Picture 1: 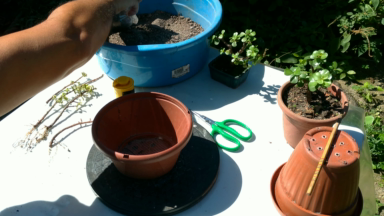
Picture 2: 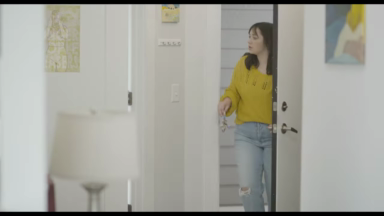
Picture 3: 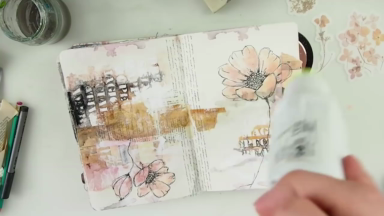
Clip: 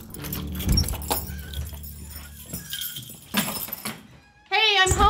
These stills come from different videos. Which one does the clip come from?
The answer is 2